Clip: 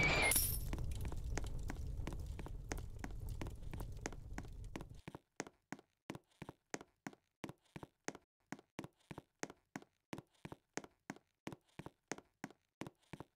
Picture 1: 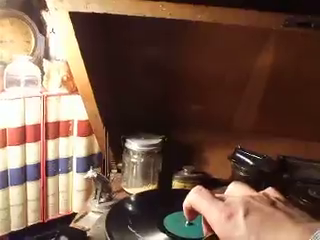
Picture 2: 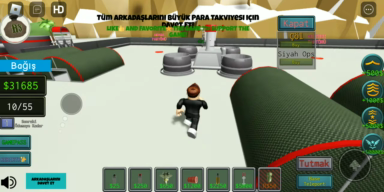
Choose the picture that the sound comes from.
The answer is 2